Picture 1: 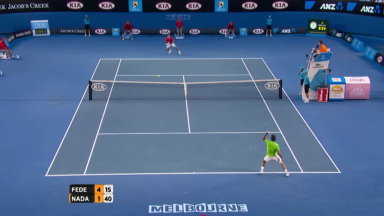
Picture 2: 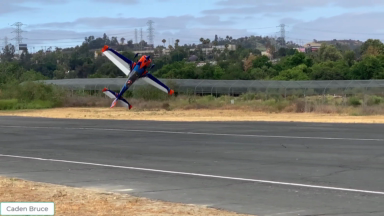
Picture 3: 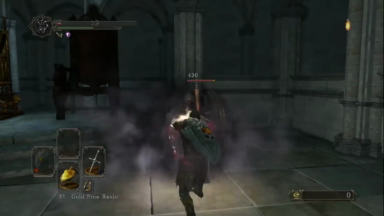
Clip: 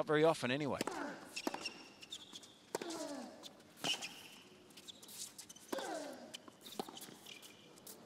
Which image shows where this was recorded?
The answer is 1